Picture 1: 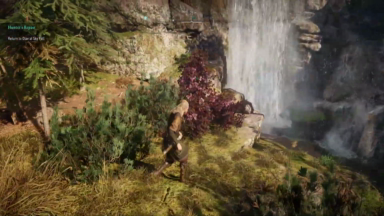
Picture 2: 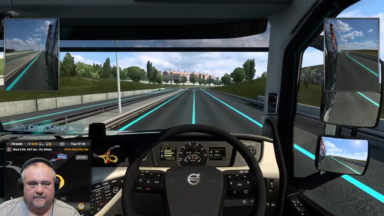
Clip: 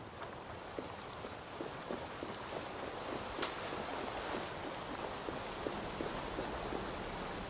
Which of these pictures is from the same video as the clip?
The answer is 1